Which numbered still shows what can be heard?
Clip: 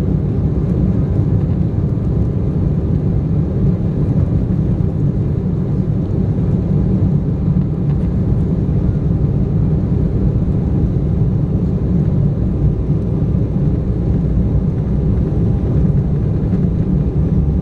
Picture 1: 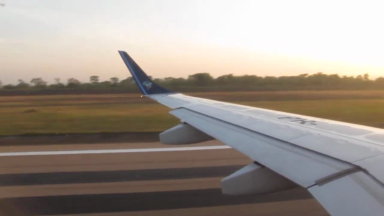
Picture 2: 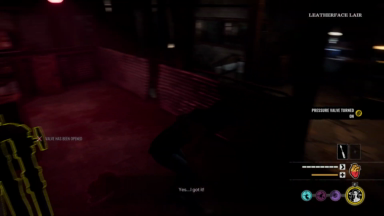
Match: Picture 1